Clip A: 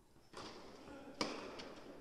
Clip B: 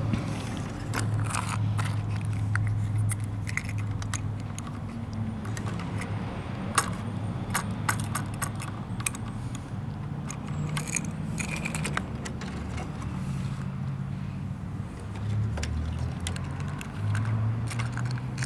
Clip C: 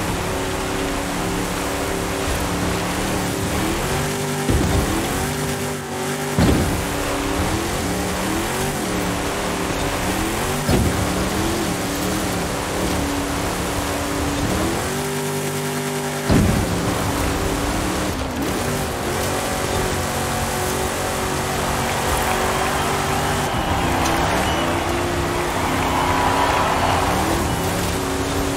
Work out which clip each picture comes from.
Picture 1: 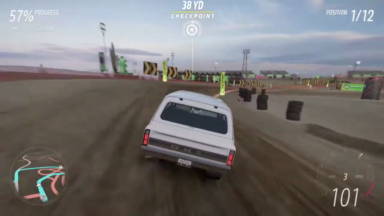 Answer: C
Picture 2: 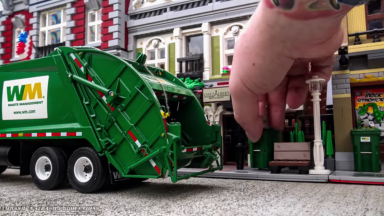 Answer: B